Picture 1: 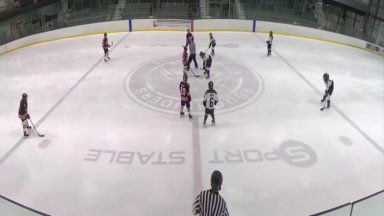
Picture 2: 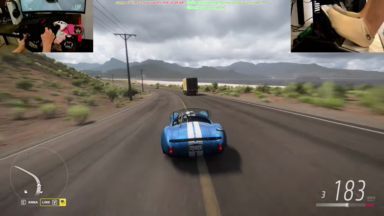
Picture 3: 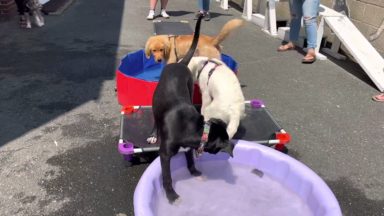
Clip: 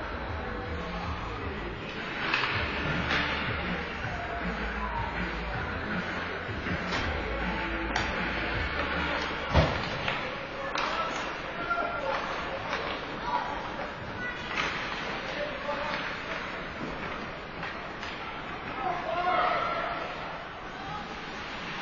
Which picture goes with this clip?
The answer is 1